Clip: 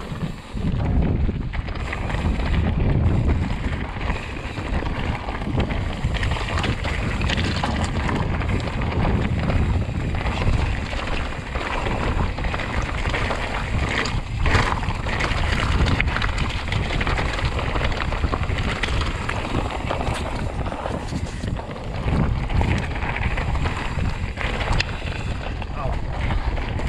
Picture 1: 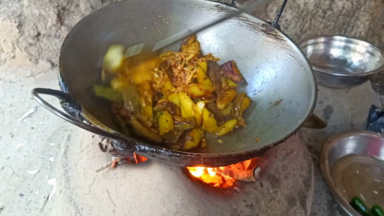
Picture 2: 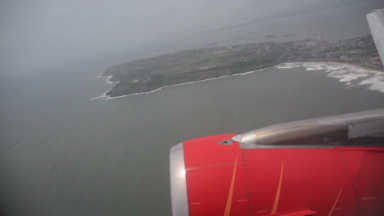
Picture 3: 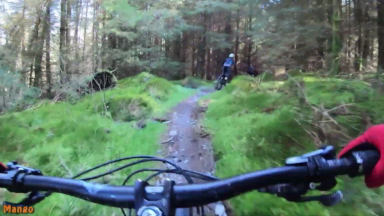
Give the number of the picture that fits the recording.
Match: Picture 3